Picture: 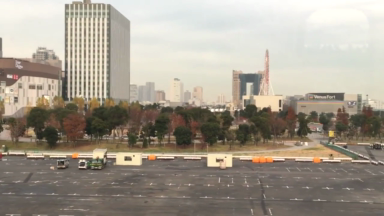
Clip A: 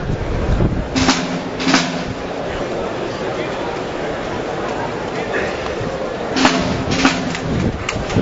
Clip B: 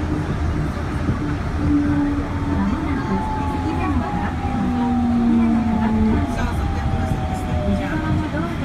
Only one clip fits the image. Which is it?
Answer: B